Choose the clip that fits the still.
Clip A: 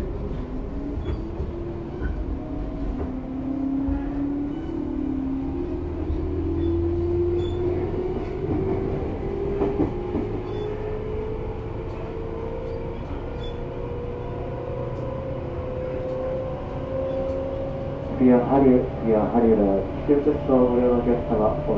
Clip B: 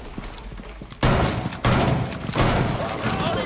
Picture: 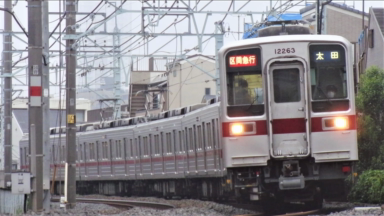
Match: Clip A